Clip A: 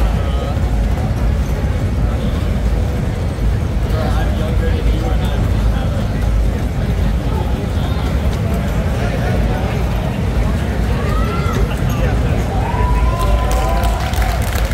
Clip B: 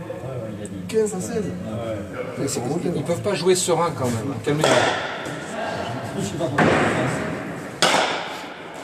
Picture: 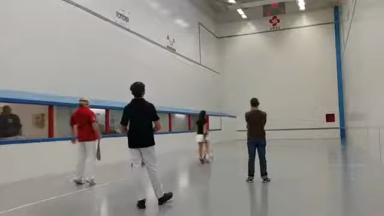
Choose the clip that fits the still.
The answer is B